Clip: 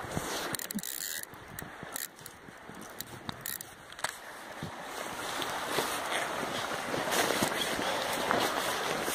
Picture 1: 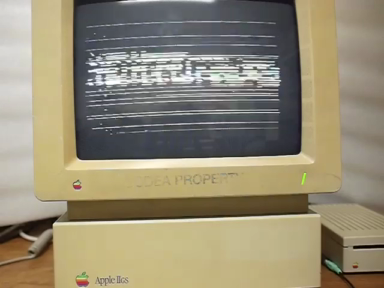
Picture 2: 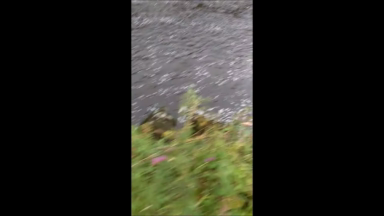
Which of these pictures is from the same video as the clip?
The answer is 2